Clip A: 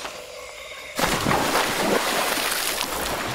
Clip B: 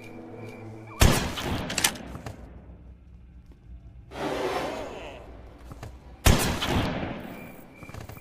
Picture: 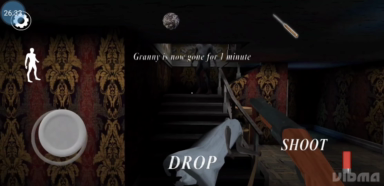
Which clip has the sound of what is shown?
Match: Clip B